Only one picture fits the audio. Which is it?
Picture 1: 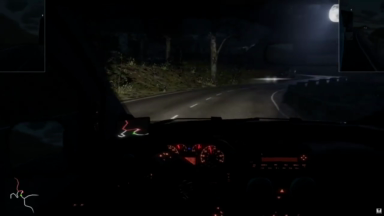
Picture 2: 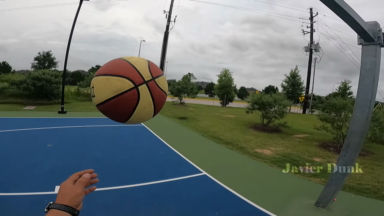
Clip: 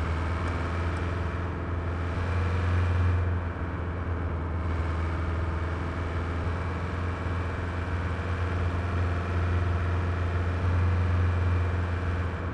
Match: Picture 1